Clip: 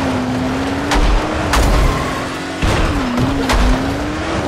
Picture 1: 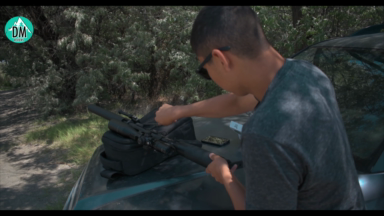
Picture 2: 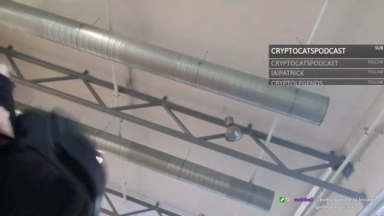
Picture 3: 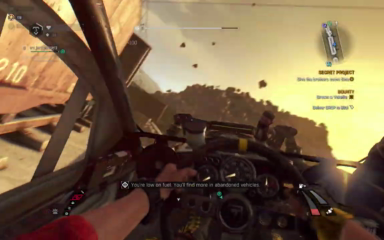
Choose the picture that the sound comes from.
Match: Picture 3